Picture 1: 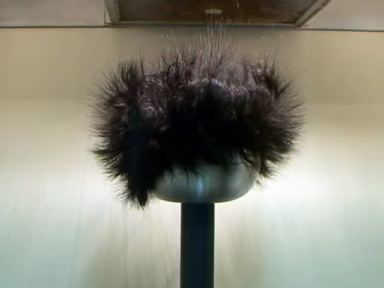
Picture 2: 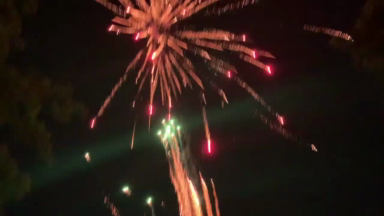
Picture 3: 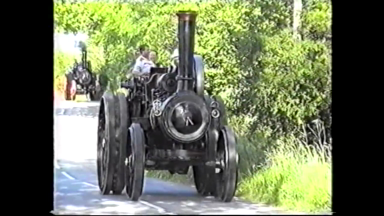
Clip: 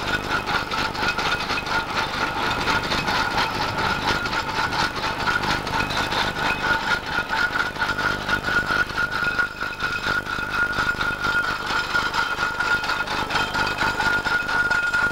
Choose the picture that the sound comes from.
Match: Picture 3